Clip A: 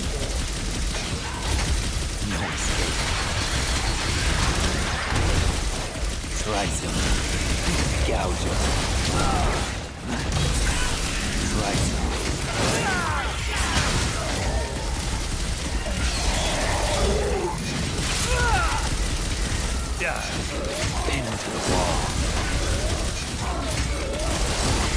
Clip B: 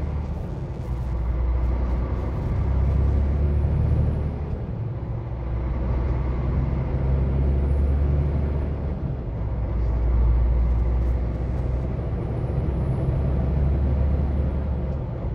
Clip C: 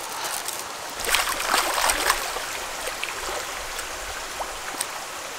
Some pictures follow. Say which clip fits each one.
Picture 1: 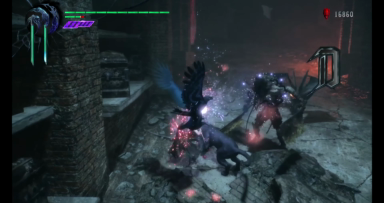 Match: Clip A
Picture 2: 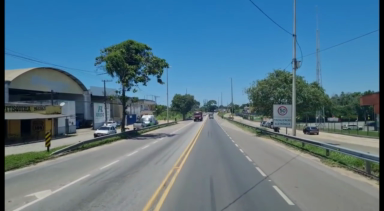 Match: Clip B